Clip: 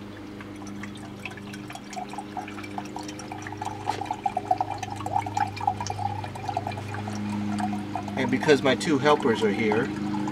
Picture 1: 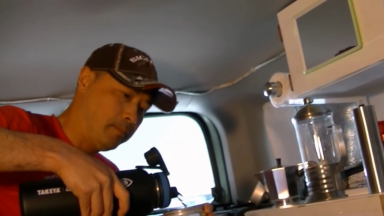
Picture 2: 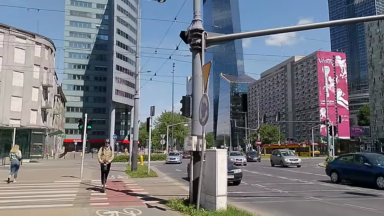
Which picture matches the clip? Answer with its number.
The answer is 1